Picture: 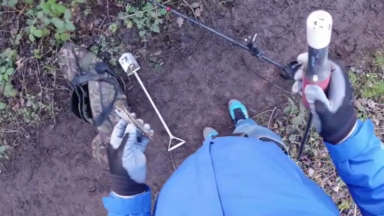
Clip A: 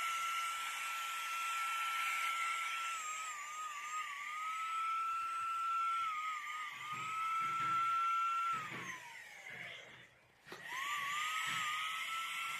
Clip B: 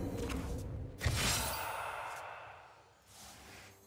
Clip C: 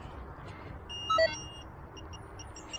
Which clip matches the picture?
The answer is C